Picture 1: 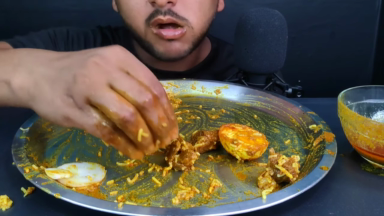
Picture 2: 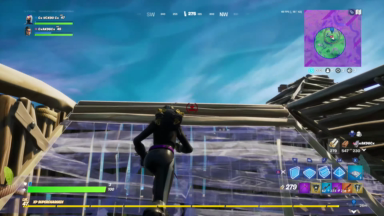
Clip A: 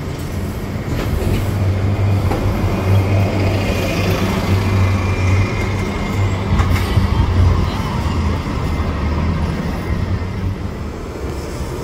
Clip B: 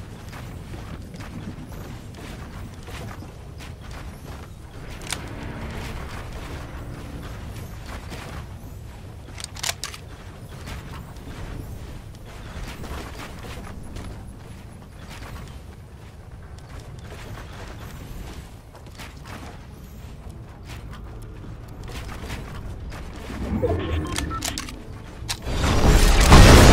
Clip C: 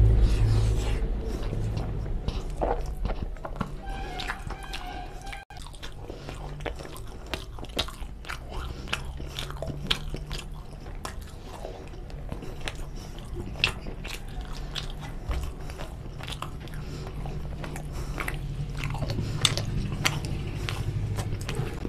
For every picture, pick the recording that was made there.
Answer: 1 C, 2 B